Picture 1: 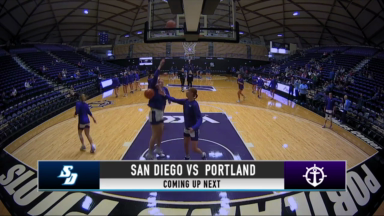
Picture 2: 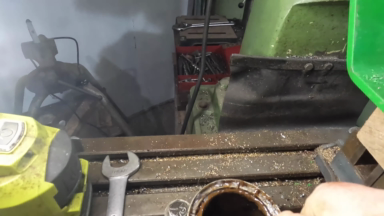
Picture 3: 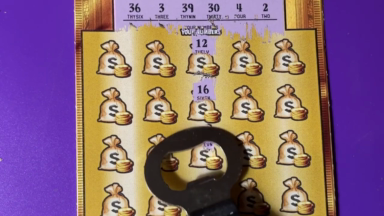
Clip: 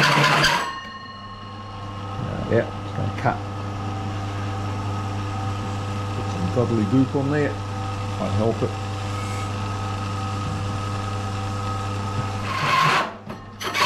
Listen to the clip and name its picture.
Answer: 2